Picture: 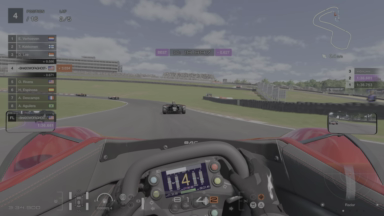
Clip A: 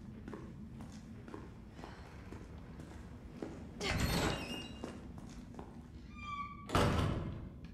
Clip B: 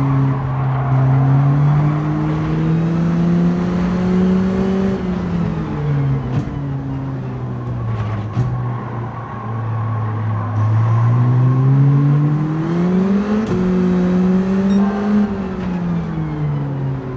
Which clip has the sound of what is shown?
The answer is B